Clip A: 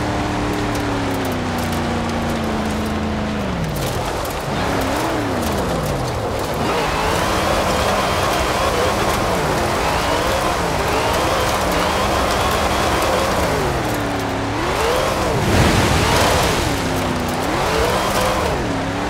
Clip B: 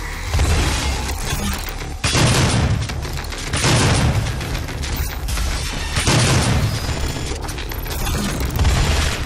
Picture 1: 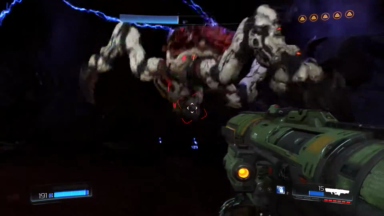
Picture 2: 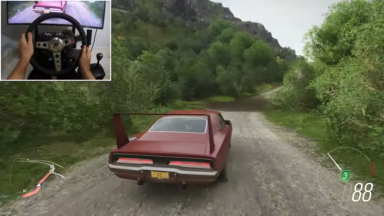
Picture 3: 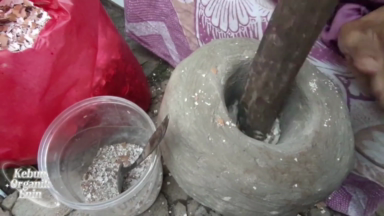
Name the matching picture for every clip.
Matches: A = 2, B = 1